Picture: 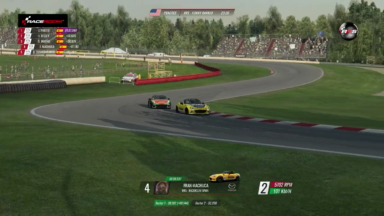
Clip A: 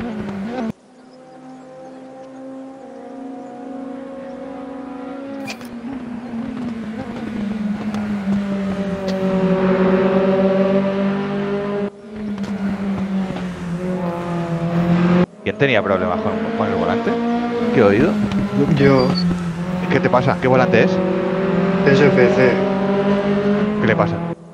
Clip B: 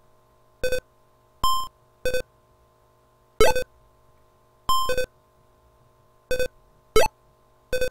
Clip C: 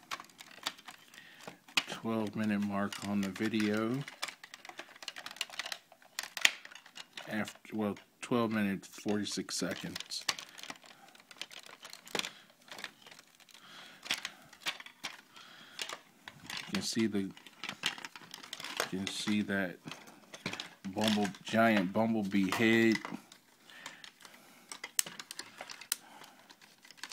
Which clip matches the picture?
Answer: A